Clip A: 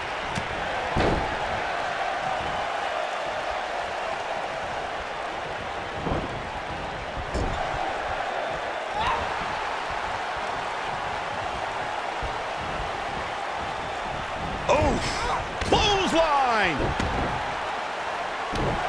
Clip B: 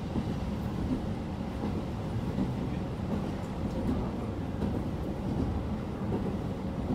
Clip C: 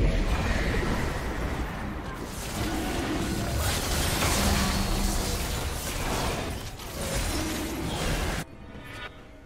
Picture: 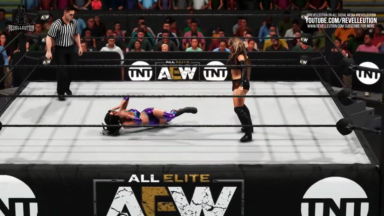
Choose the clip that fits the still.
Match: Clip A